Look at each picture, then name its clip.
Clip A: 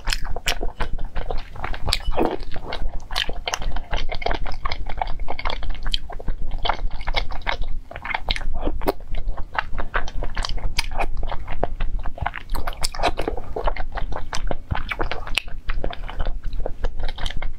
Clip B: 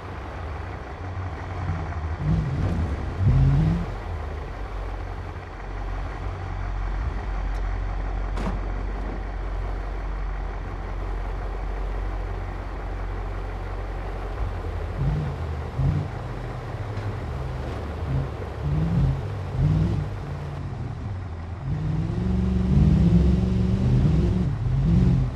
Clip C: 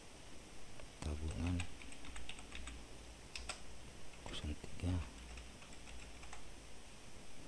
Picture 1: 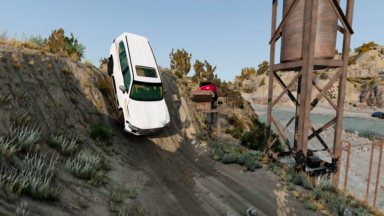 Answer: B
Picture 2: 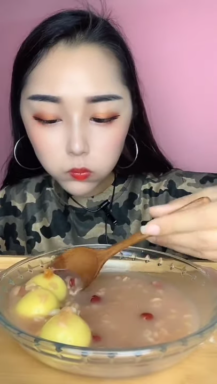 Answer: A